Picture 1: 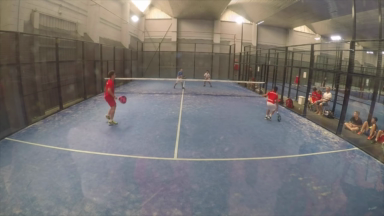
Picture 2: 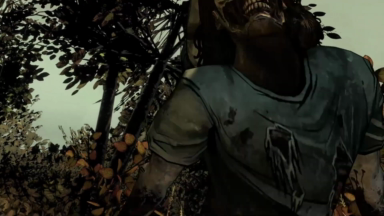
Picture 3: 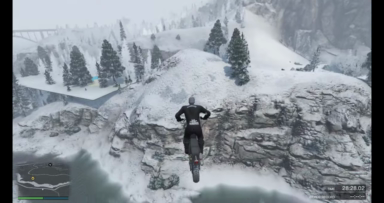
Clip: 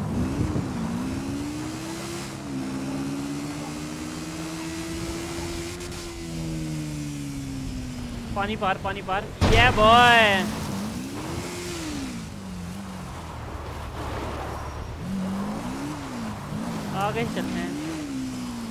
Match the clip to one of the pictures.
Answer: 3